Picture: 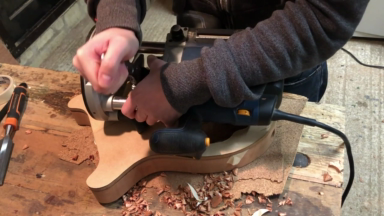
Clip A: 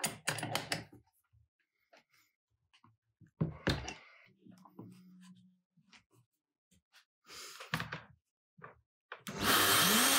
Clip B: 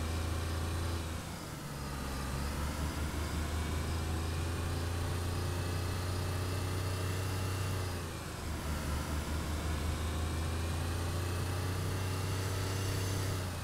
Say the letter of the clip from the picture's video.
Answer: A